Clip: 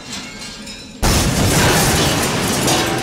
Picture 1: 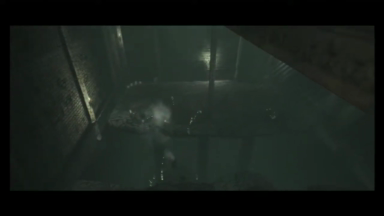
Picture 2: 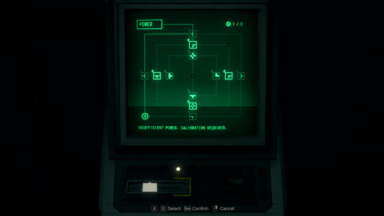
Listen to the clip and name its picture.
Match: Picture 1